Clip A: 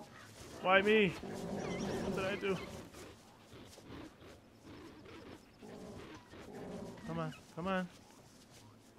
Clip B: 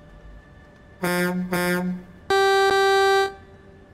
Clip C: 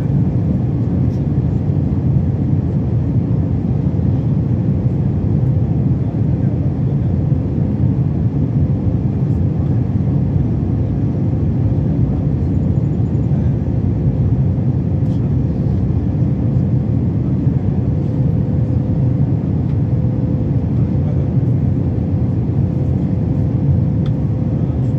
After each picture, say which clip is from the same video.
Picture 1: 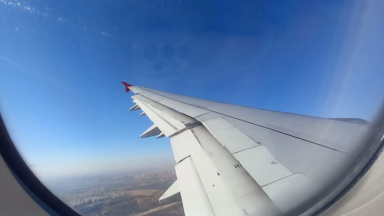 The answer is C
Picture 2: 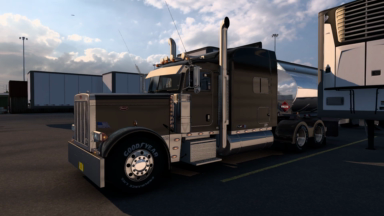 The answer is B